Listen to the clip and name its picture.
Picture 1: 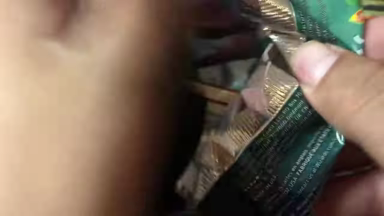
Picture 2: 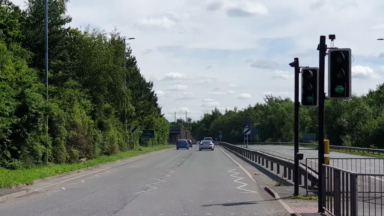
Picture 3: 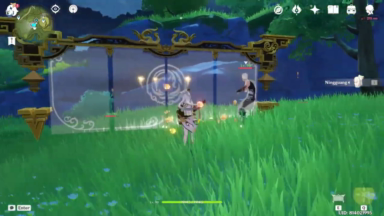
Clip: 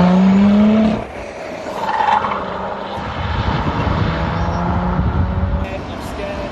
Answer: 2